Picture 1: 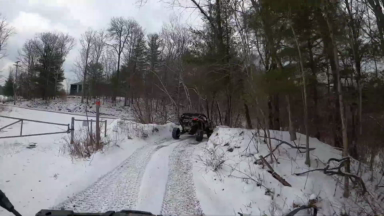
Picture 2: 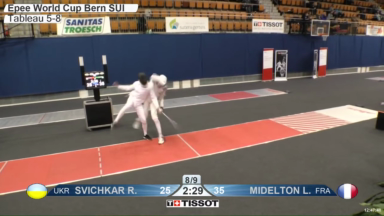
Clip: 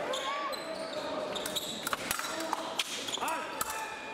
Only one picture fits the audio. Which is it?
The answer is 2